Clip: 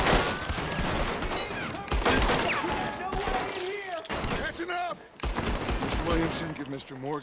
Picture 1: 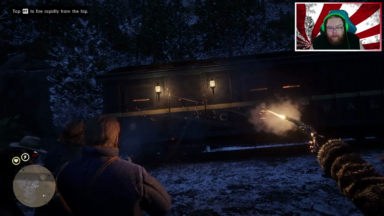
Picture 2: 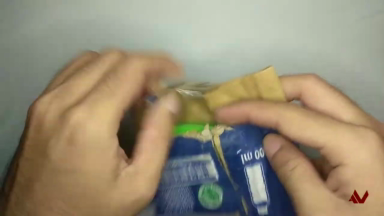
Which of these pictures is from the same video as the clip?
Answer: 1